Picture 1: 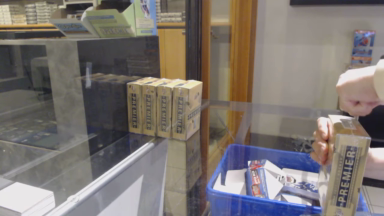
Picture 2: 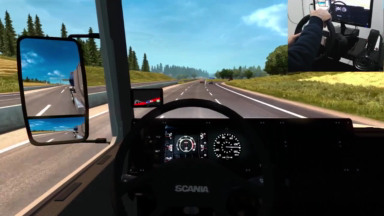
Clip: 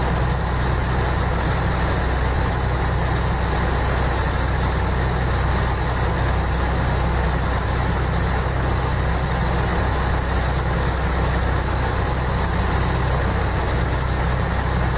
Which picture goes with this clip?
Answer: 2